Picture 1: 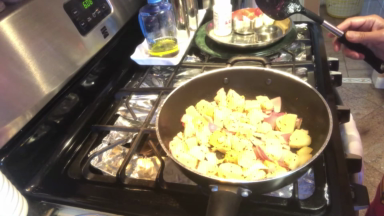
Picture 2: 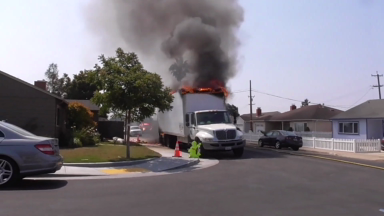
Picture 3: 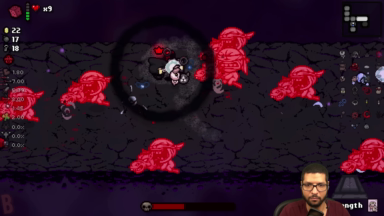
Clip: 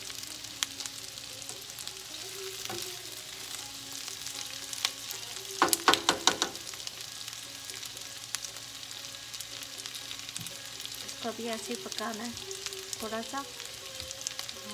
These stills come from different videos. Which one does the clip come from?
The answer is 1